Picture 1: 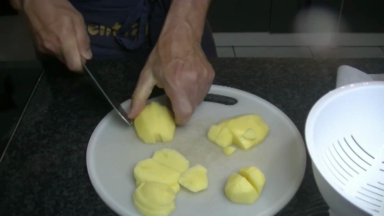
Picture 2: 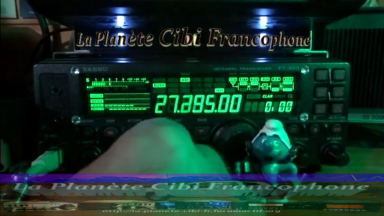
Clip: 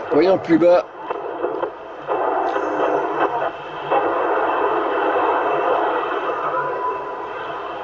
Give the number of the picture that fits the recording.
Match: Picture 2